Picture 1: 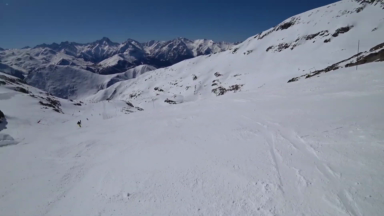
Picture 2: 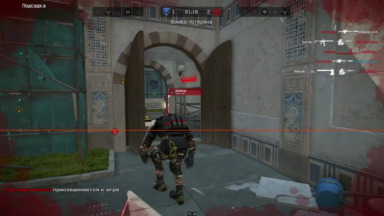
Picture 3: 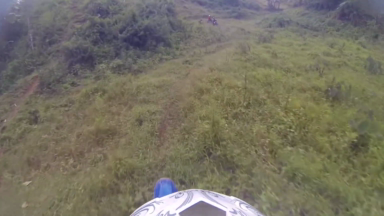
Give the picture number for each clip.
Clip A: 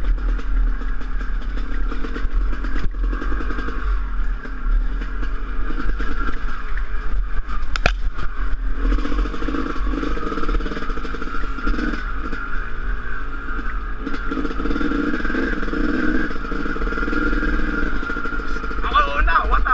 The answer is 3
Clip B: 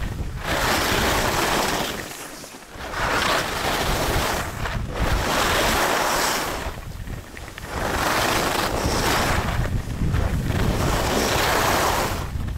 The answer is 1